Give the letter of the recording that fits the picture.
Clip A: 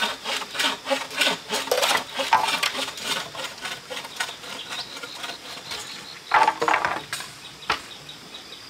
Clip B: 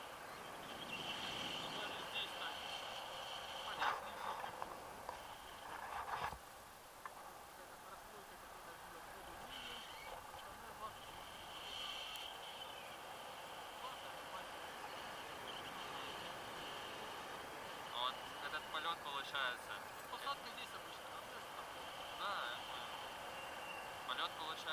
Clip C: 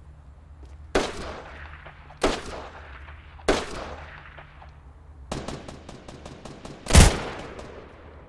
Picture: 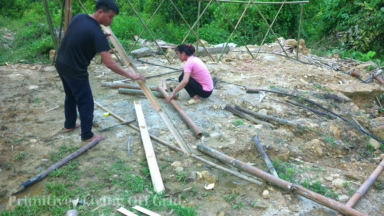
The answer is A